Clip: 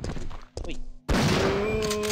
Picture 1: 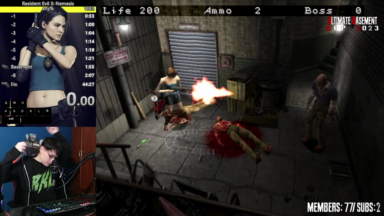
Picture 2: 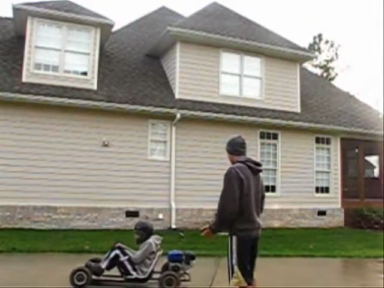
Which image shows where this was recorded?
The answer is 1